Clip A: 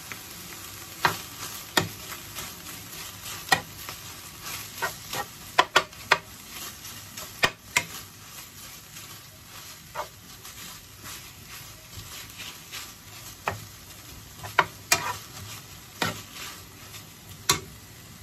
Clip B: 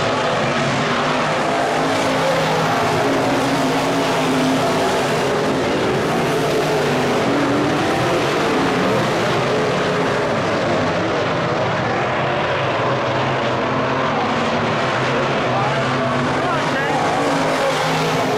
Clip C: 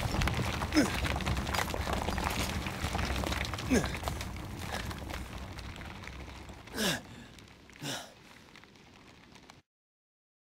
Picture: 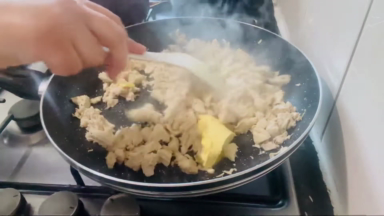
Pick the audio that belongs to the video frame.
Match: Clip A